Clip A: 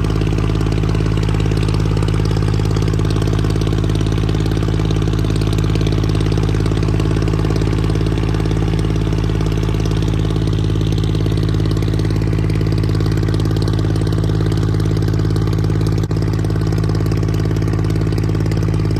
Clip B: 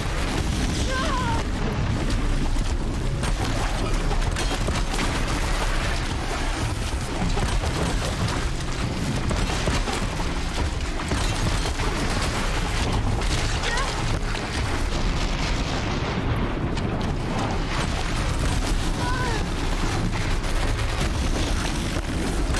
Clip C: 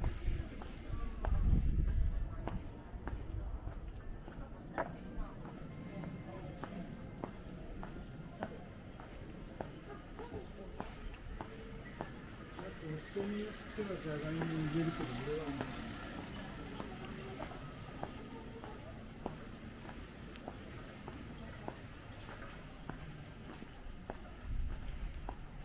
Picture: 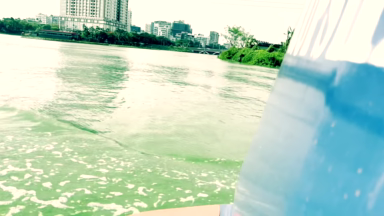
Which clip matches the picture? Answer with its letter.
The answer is A